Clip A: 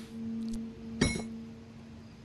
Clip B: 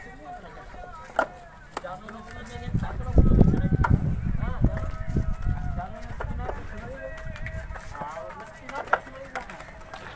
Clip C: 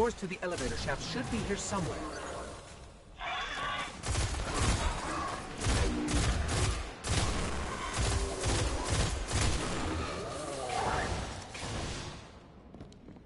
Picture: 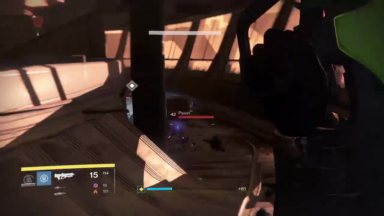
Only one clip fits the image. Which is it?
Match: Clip C